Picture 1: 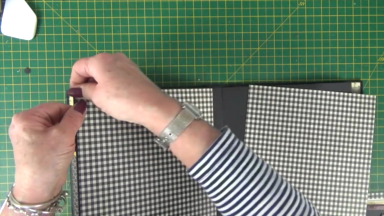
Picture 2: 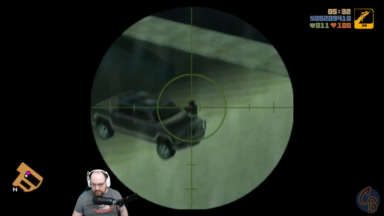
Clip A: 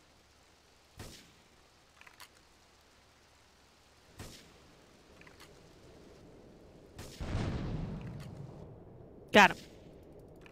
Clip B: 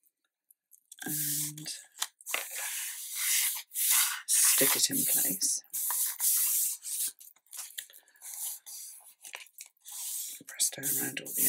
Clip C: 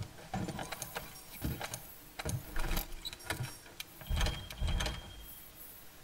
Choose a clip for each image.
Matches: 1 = B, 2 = A